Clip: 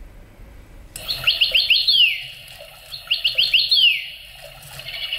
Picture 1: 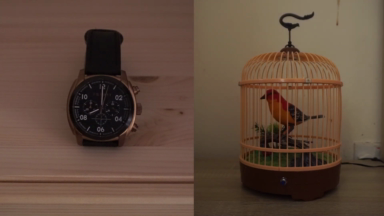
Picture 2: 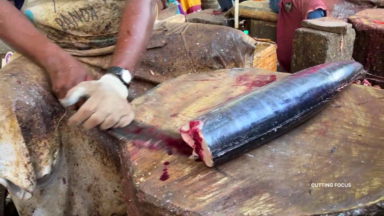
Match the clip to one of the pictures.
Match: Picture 1